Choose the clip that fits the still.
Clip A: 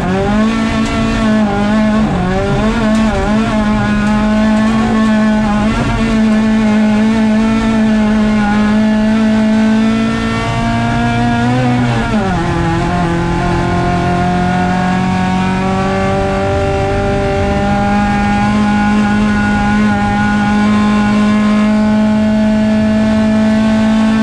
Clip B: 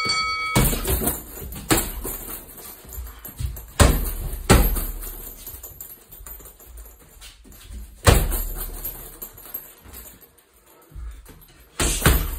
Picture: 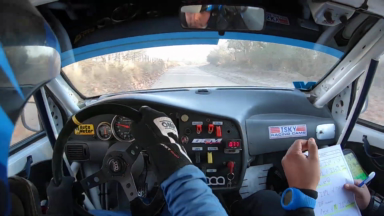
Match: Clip A